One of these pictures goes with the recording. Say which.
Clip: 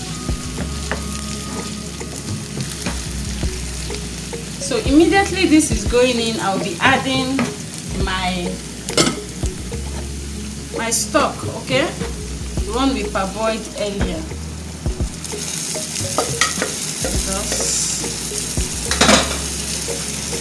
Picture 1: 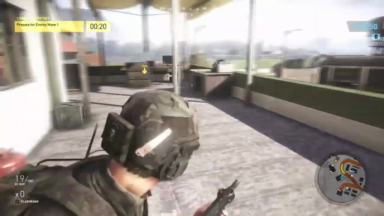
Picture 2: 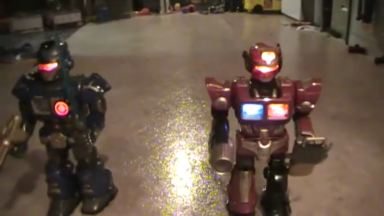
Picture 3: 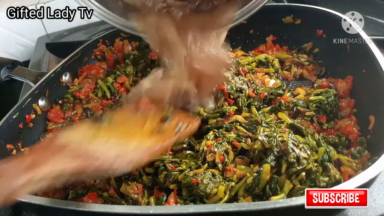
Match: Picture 3